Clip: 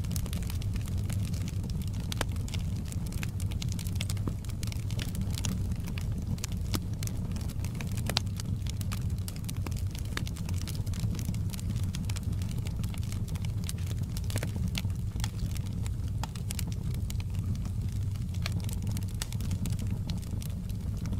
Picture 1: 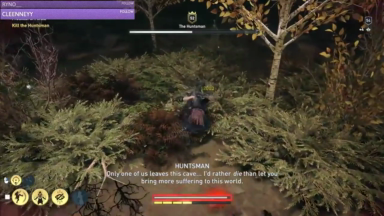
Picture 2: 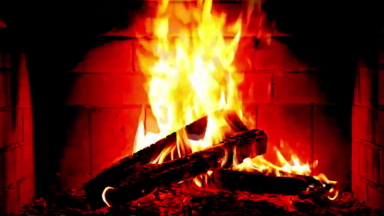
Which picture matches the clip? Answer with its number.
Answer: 2